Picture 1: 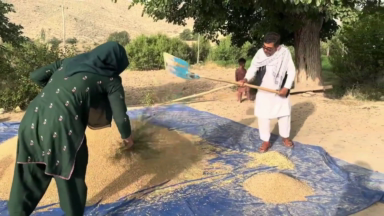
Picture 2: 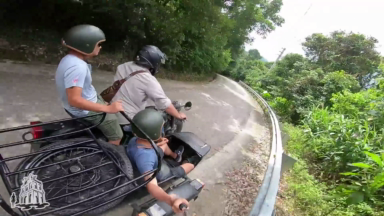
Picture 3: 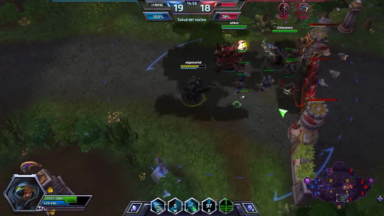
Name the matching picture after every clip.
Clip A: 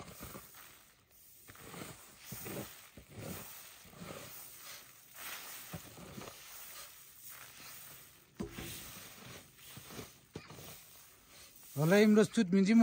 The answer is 1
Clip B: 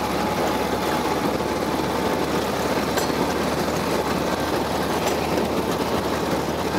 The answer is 2